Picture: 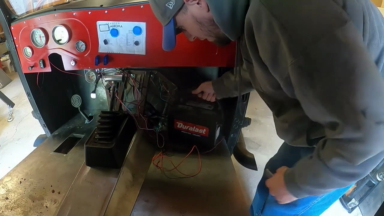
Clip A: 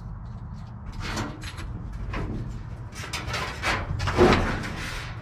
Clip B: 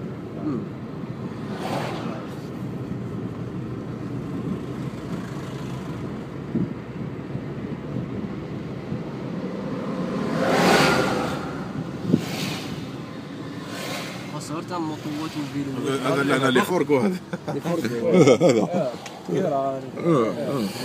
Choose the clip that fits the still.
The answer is A